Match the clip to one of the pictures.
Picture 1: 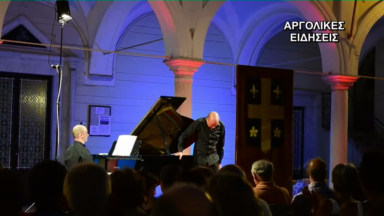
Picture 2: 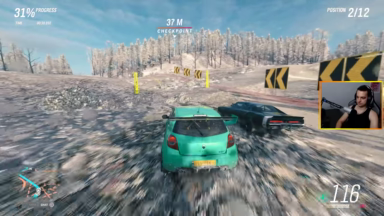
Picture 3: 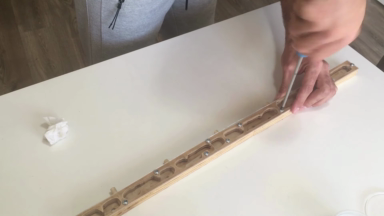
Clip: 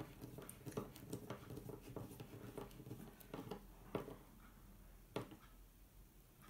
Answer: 3